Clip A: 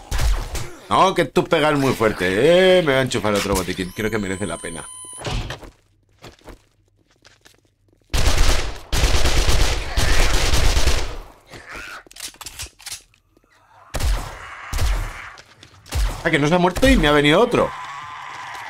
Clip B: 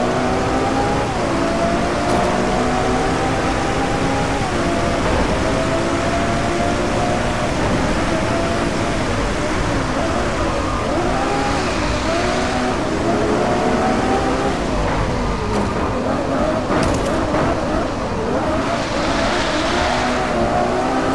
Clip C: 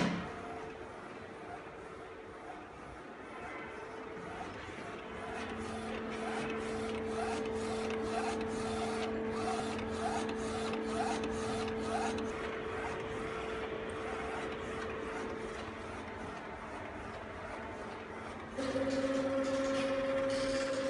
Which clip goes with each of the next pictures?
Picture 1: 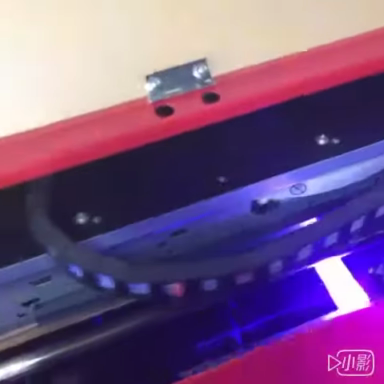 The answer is C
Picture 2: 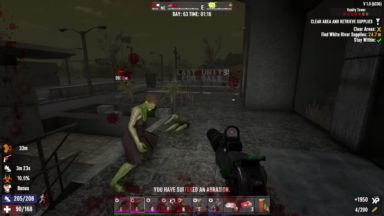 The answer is A